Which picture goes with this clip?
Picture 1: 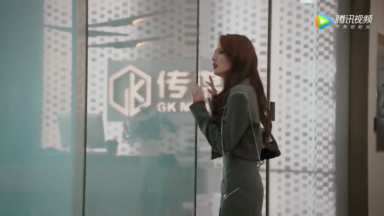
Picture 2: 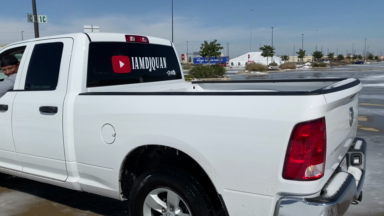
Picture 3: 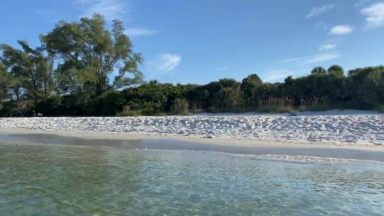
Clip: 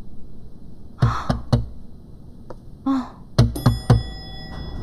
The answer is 1